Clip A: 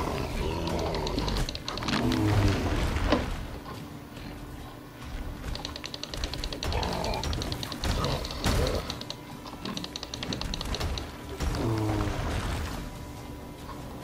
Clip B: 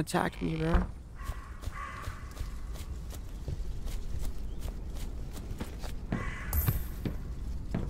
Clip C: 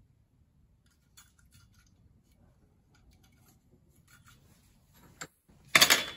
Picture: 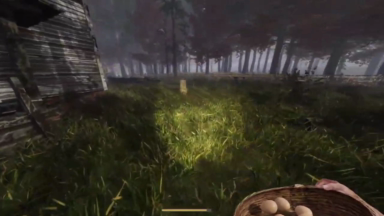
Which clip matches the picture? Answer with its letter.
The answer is B